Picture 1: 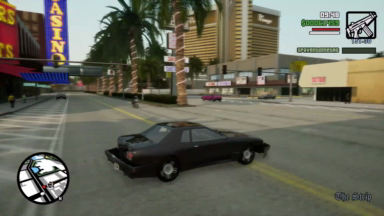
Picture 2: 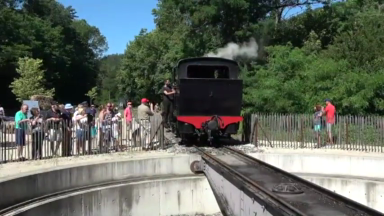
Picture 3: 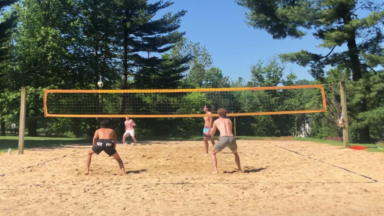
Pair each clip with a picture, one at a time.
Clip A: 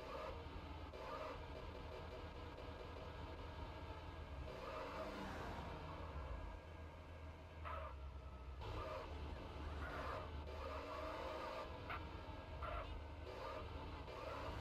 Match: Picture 1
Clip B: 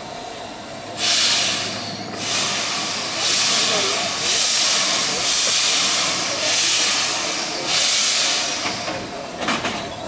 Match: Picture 2